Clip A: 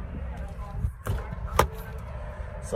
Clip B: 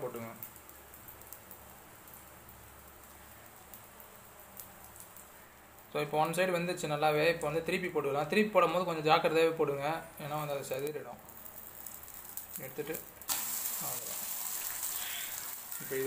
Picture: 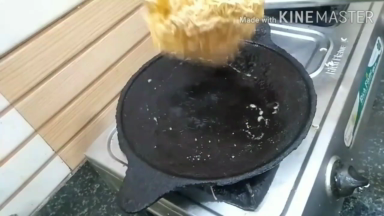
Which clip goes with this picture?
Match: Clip B